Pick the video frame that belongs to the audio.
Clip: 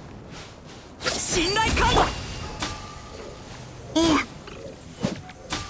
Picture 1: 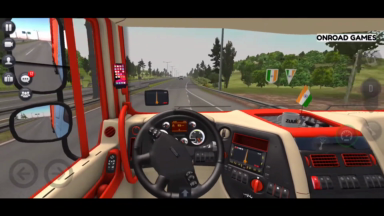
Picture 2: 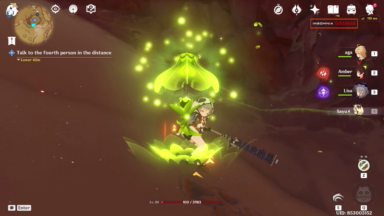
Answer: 2